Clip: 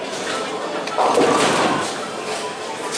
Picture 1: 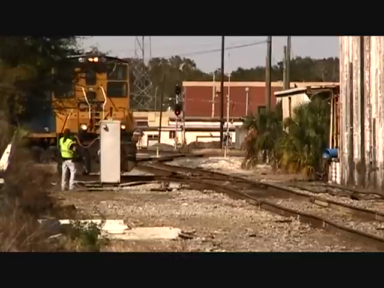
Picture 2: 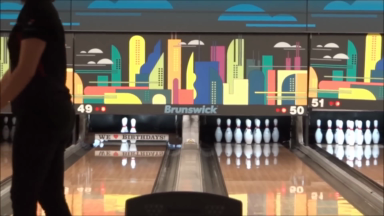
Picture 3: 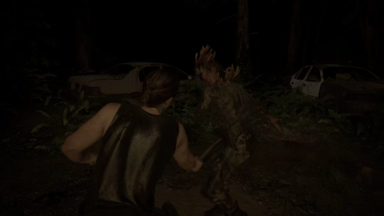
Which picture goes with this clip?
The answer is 2